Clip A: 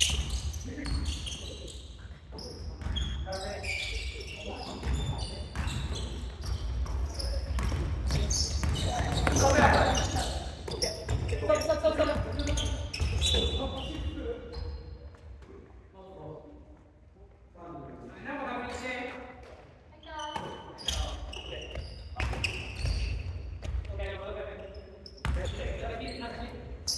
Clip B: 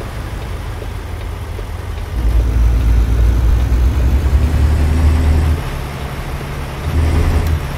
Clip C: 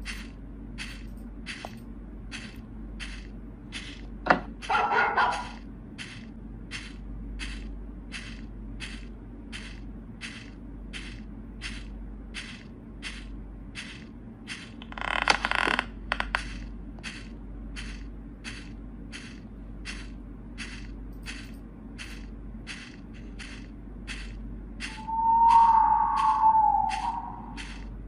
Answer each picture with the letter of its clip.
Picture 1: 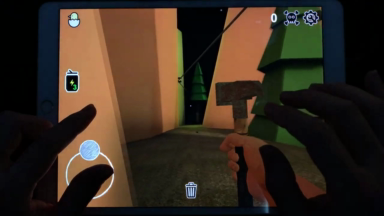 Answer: C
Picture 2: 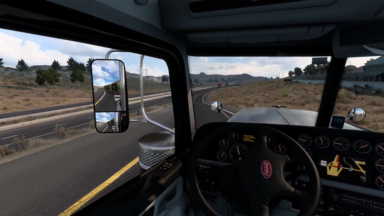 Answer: B